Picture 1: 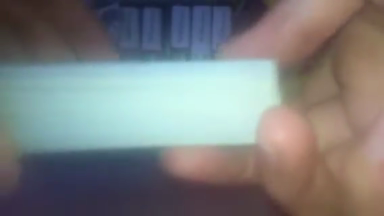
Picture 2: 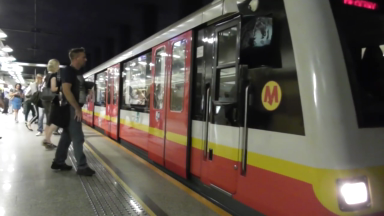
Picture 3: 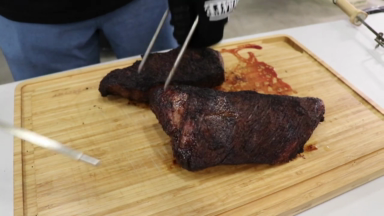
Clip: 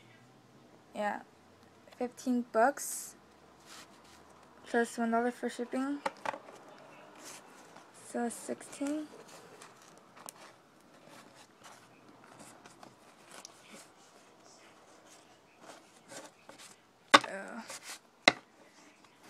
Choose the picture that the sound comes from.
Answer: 1